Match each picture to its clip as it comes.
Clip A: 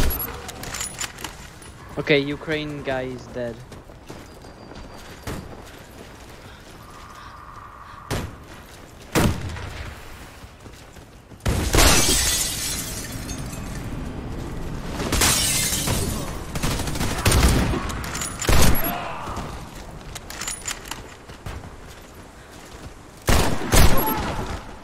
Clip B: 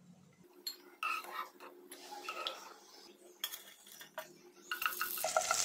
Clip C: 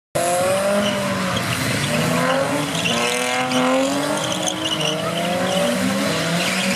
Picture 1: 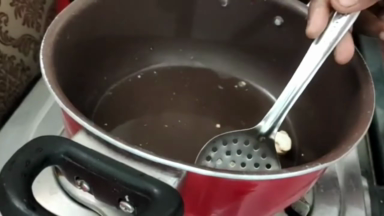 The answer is B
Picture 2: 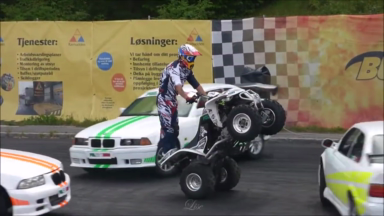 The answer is C